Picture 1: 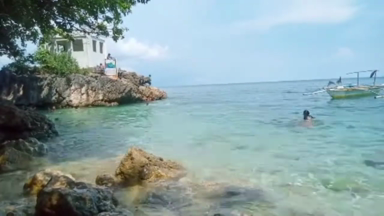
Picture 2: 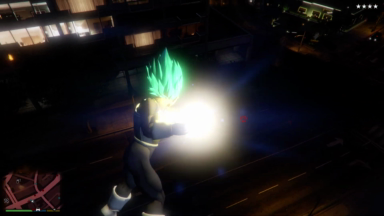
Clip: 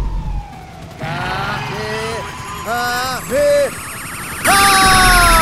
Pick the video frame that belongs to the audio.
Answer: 2